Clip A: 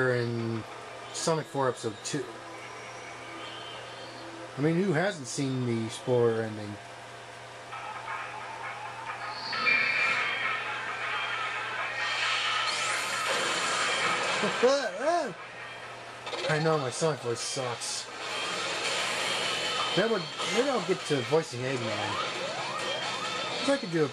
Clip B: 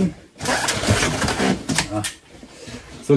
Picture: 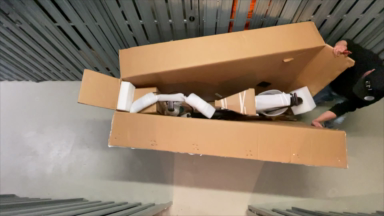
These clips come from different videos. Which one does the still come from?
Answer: B